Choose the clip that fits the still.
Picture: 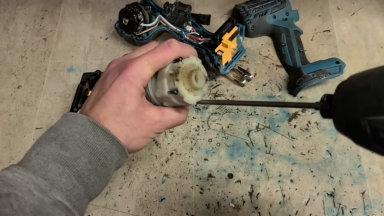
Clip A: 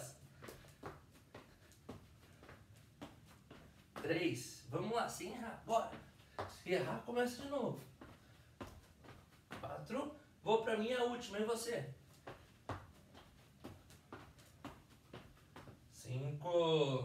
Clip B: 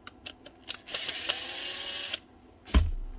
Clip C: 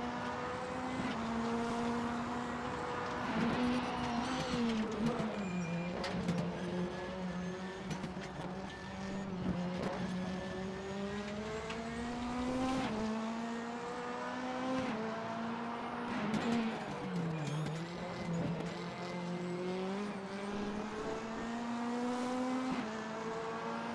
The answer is B